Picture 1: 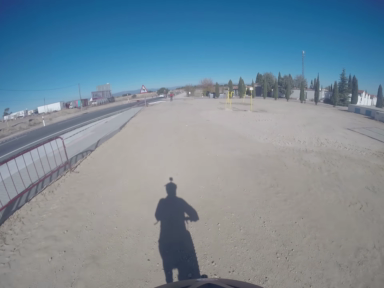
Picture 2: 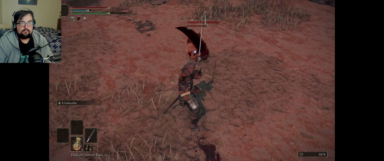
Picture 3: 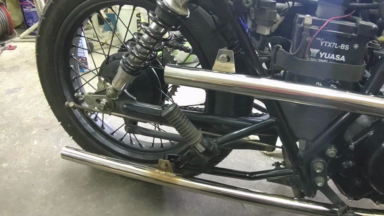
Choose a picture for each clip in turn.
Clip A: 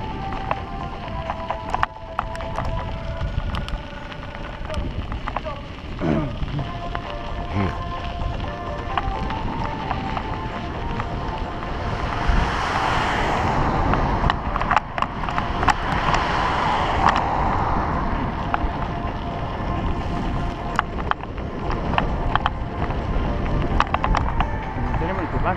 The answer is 1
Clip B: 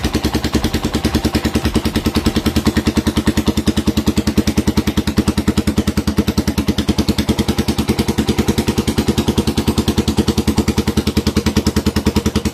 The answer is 3